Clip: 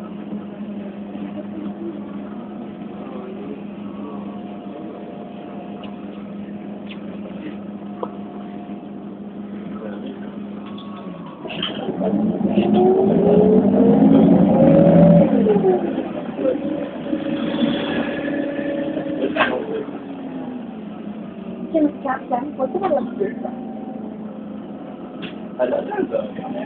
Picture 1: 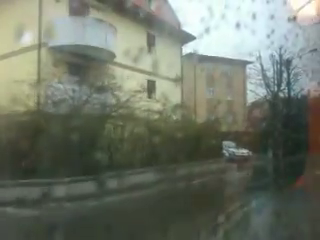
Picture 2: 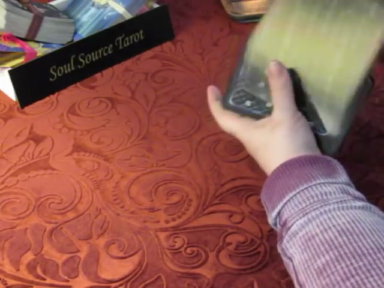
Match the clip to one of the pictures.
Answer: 1